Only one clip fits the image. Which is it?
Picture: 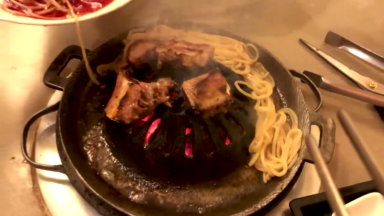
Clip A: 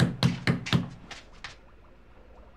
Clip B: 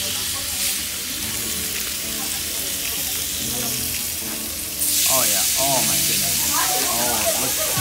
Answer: B